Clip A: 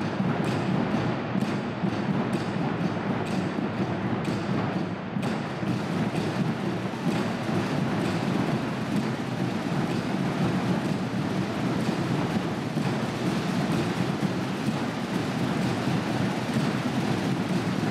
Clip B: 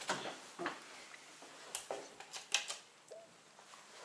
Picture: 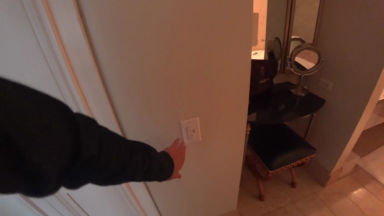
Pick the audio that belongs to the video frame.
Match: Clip B